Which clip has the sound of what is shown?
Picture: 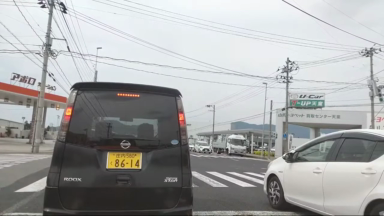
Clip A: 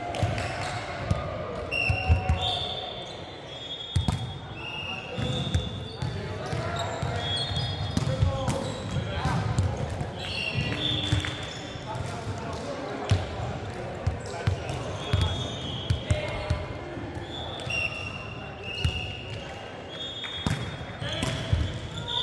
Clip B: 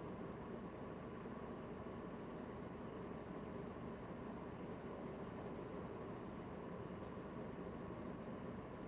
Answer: B